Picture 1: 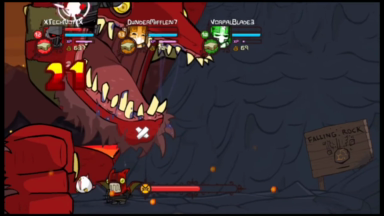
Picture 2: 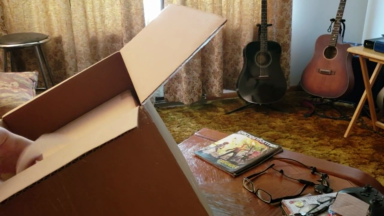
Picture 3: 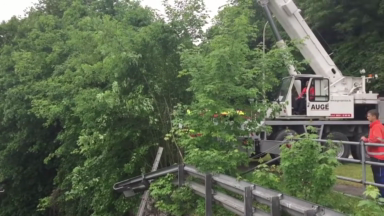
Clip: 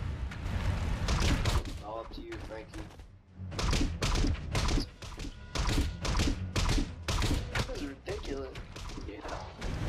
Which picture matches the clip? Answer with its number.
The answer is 1